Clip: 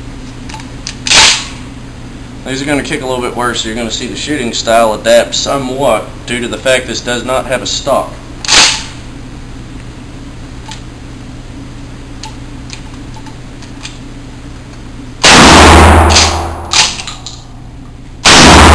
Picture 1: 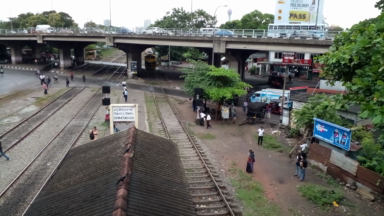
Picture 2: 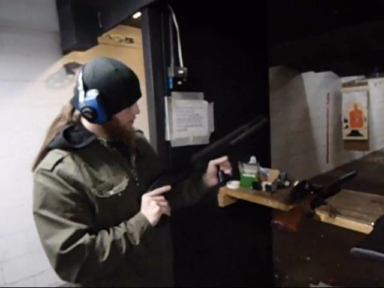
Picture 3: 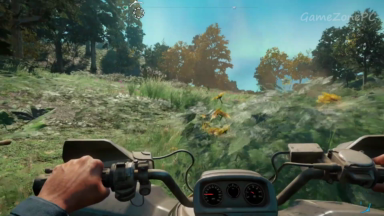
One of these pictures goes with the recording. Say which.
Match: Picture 2